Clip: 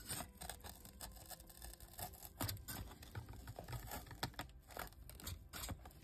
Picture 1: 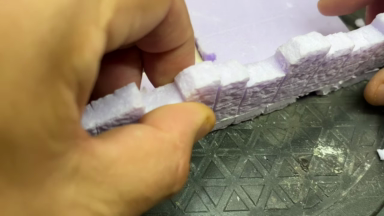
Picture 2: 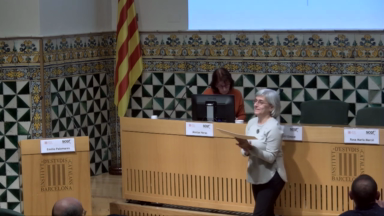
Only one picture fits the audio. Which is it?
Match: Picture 1